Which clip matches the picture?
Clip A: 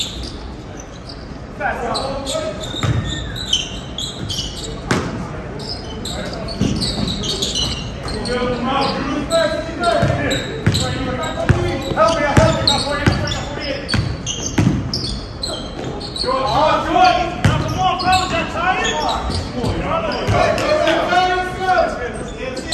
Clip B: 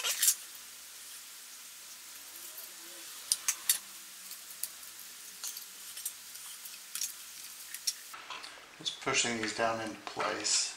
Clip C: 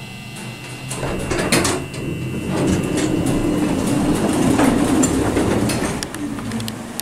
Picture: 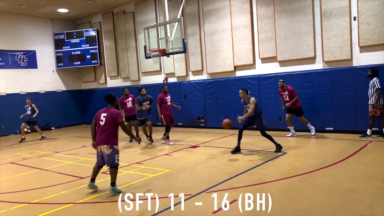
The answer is A